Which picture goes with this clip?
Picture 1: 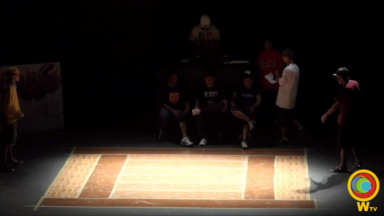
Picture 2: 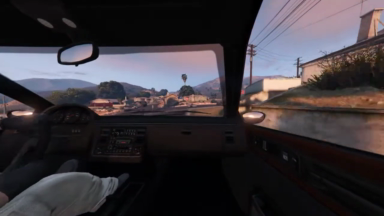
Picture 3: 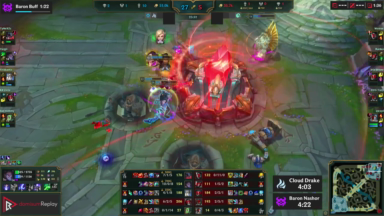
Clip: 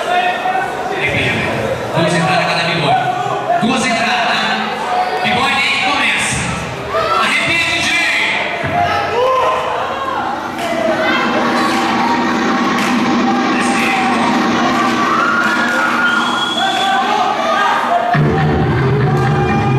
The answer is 1